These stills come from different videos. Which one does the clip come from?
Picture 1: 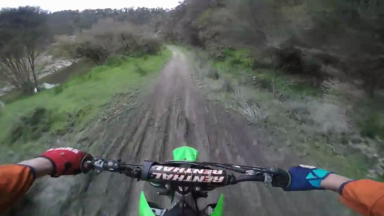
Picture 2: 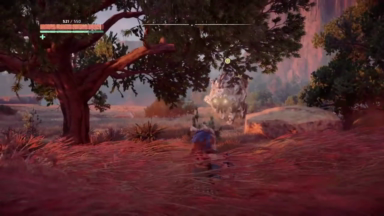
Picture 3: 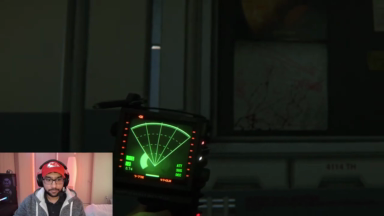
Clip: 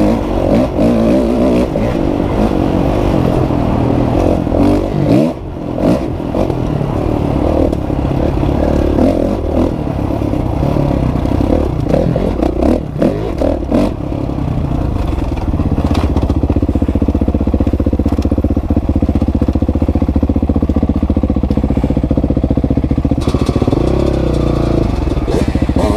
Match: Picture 1